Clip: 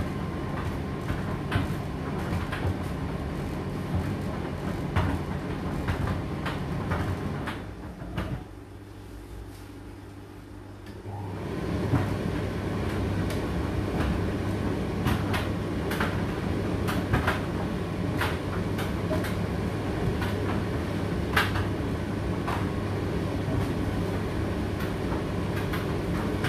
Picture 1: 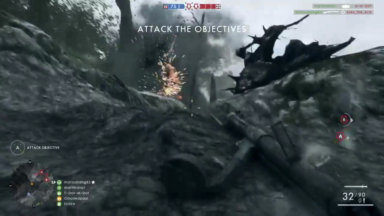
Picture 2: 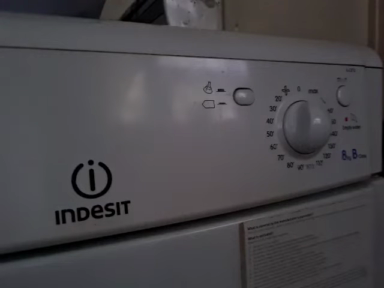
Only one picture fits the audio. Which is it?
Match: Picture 2